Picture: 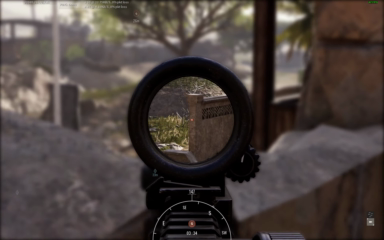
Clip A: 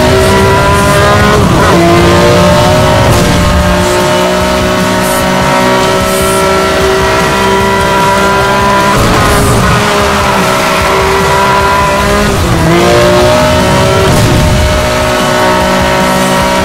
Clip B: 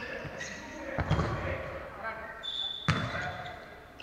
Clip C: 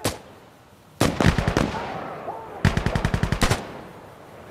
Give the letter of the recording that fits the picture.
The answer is C